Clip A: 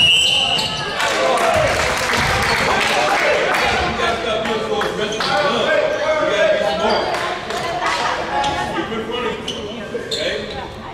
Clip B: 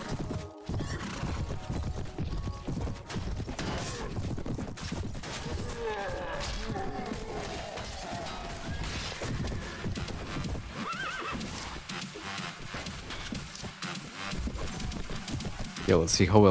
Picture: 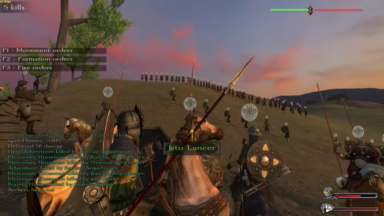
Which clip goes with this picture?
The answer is B